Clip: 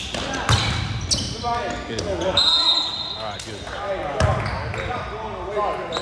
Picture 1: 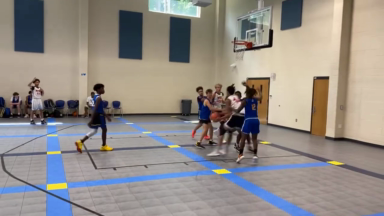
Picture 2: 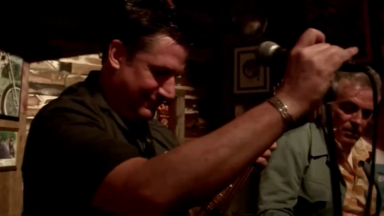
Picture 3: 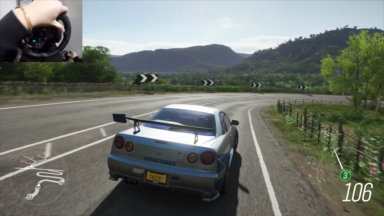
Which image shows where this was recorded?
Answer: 1